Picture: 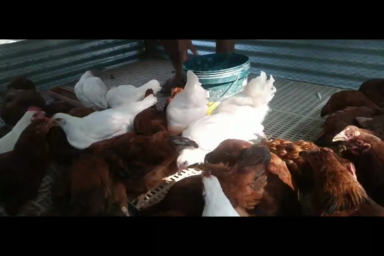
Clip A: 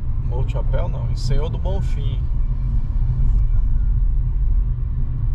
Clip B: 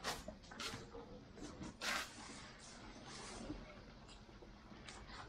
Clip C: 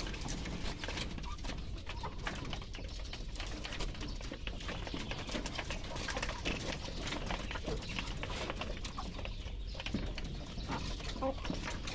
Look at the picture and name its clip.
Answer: C